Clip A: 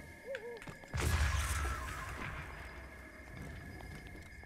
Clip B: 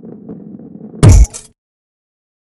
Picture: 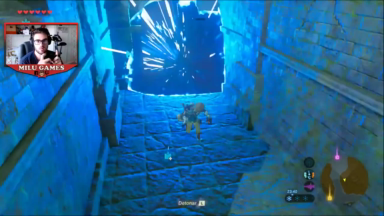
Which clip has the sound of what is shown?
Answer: A